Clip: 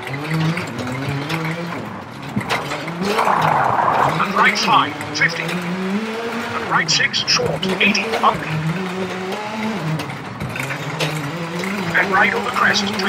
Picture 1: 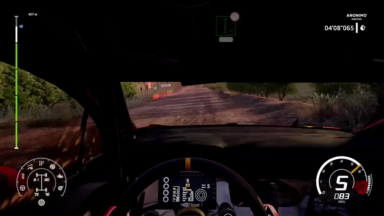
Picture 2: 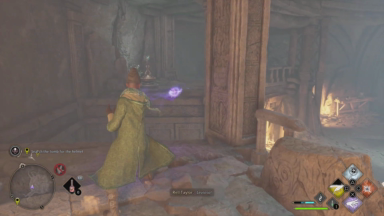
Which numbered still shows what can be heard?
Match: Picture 1